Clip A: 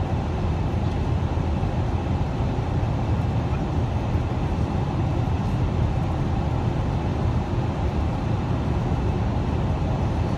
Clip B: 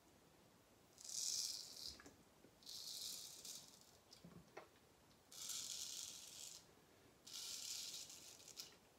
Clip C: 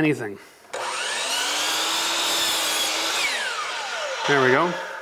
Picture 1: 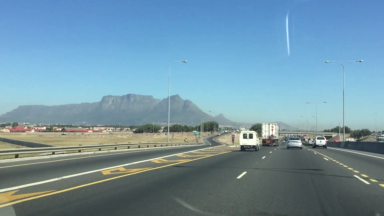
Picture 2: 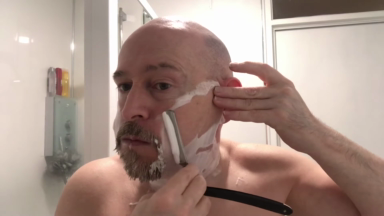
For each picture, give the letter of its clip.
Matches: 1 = A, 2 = B